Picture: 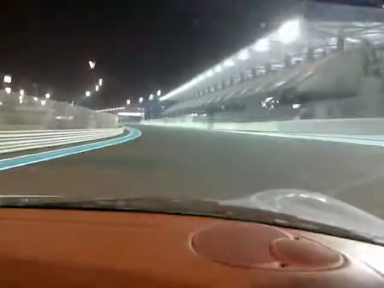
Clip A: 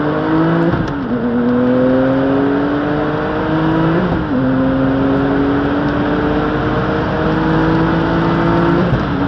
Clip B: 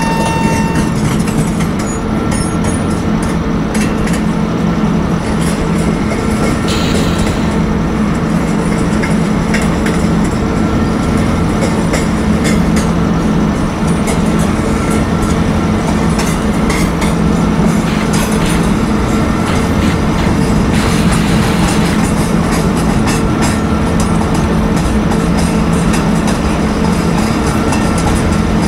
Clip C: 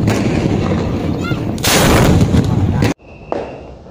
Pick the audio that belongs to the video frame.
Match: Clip A